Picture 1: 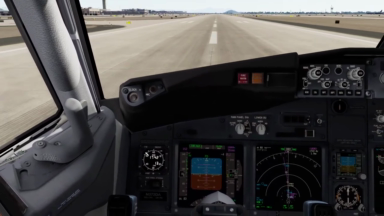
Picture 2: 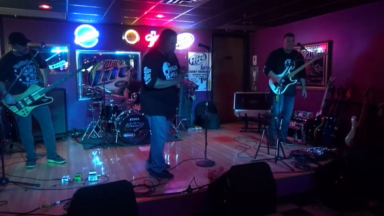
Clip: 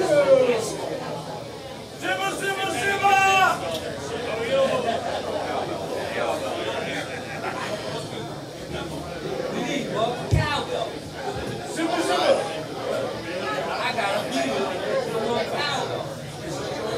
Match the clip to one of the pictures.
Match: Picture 2